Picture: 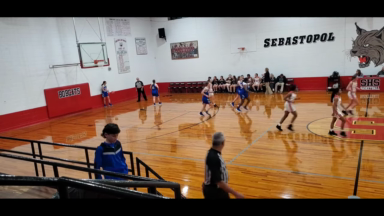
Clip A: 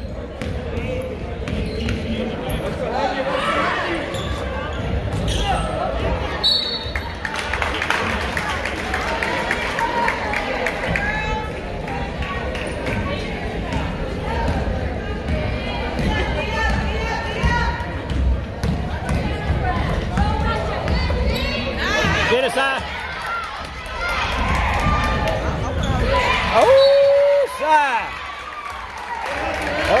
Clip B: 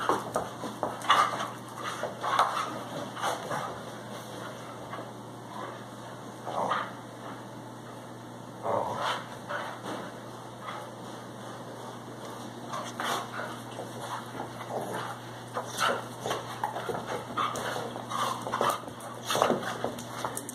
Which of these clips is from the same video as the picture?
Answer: A